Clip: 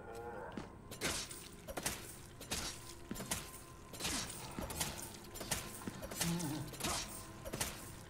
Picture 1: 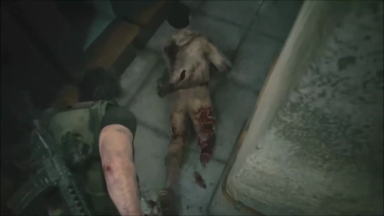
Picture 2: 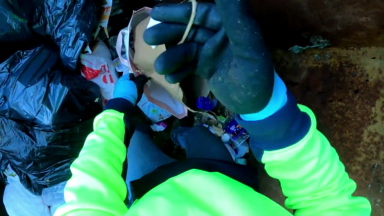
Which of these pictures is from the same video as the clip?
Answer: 1